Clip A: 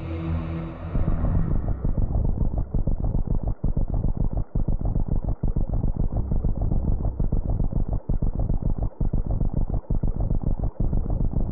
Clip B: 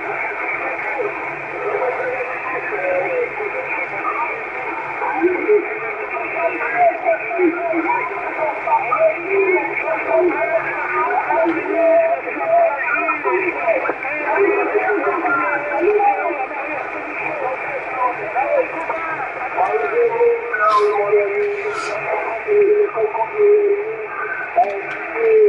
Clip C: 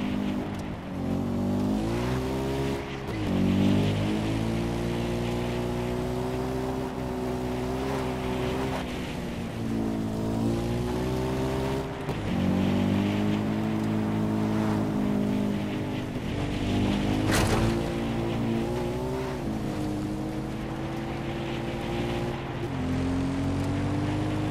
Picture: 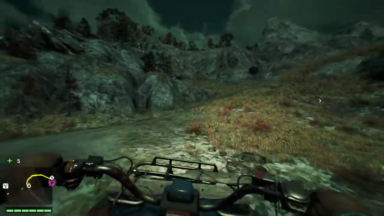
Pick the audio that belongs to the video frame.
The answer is C